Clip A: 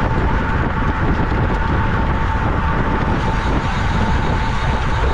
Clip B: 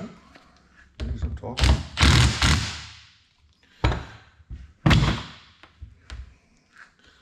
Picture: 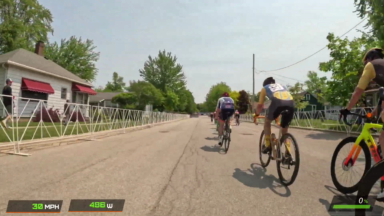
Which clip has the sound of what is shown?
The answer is A